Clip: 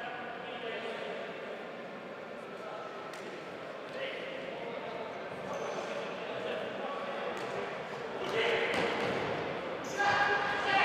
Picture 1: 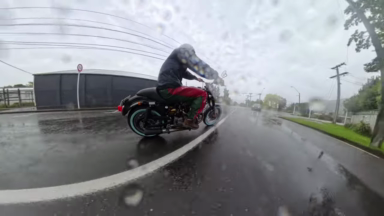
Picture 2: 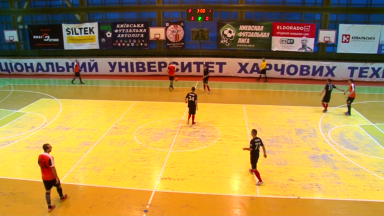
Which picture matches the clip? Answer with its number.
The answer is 2